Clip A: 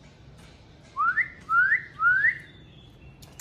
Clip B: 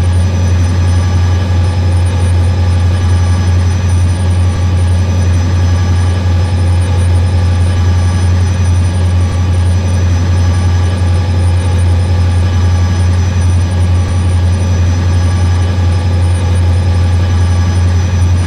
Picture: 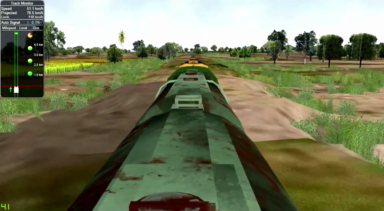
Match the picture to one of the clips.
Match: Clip B